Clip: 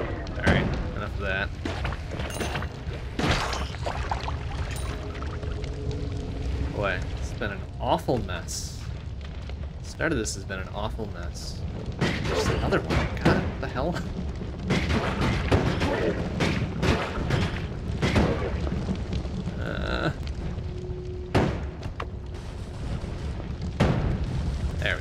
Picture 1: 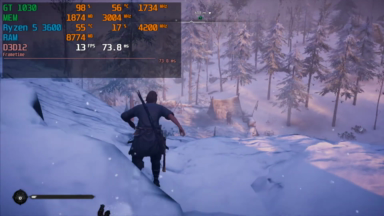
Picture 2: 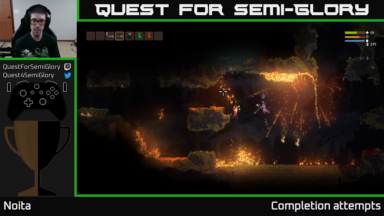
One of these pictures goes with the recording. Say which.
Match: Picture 2